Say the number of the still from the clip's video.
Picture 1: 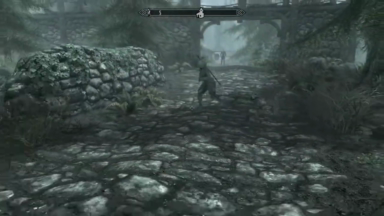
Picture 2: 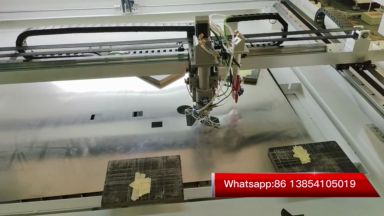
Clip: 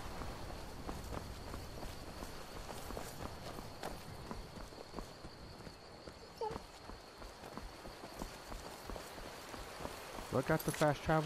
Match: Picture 1